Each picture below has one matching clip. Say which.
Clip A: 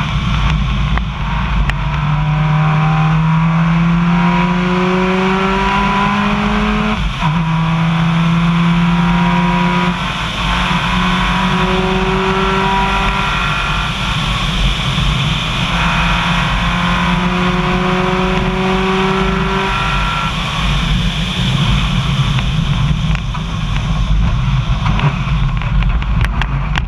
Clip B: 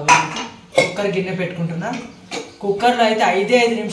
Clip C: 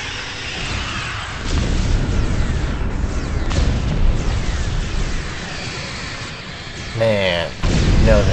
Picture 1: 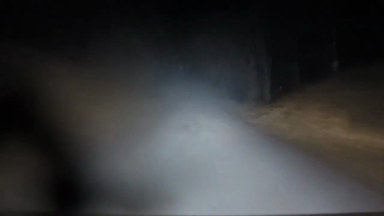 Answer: A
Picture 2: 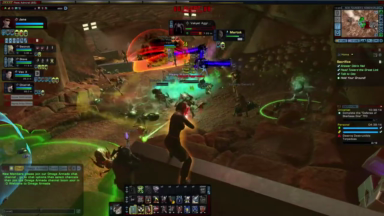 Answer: C